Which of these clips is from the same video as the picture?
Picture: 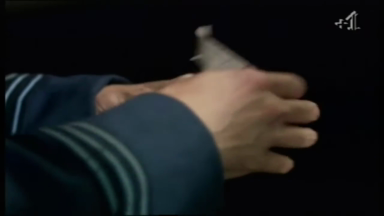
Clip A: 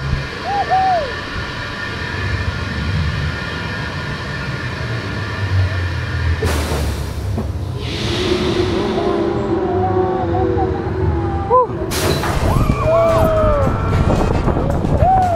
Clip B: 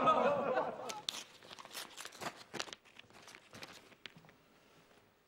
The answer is B